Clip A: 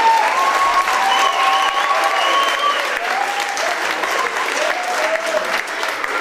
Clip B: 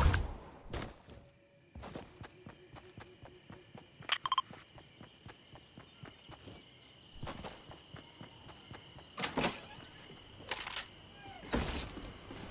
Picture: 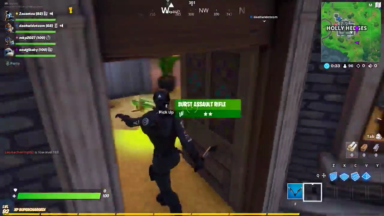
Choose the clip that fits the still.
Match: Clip B